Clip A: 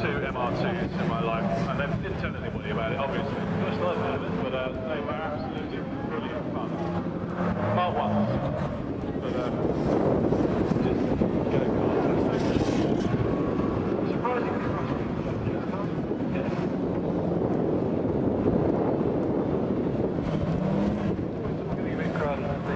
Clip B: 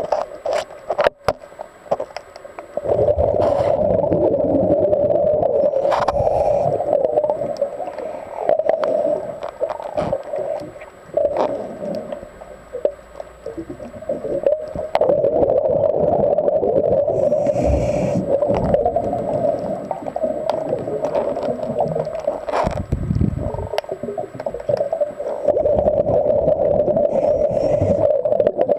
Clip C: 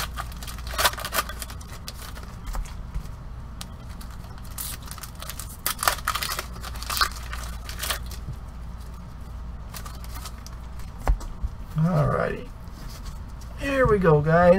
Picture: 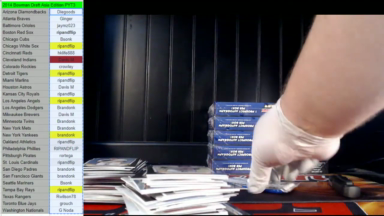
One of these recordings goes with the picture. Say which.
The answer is C